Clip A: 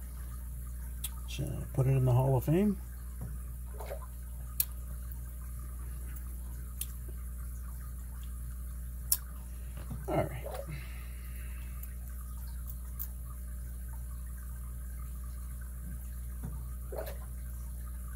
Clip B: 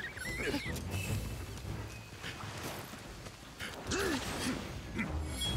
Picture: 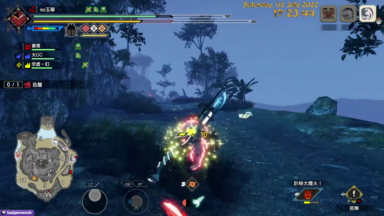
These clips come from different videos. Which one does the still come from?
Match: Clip B